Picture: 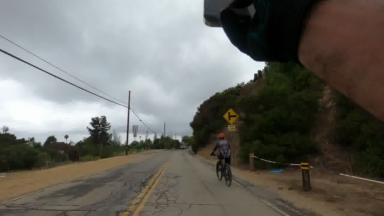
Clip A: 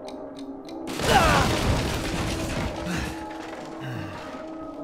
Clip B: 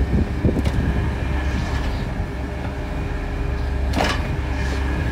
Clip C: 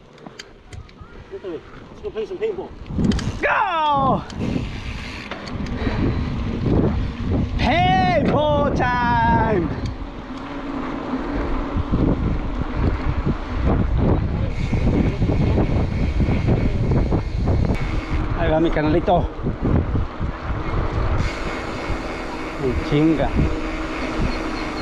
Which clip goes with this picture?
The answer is C